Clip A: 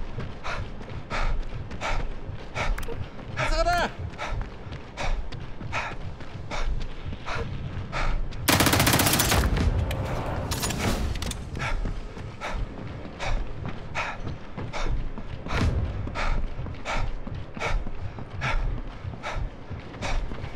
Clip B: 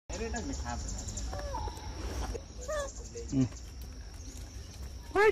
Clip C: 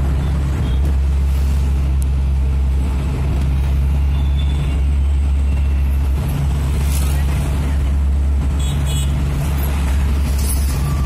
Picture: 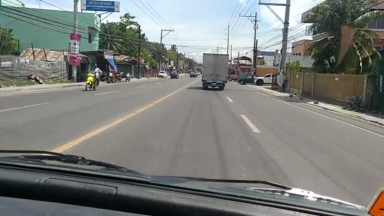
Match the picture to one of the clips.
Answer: C